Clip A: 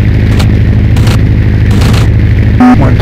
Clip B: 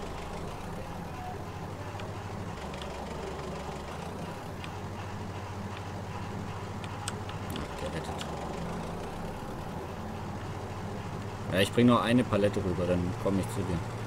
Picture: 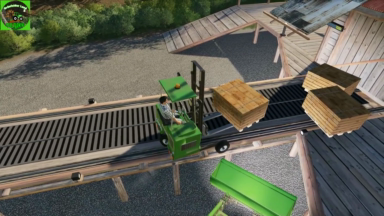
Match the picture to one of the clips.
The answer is B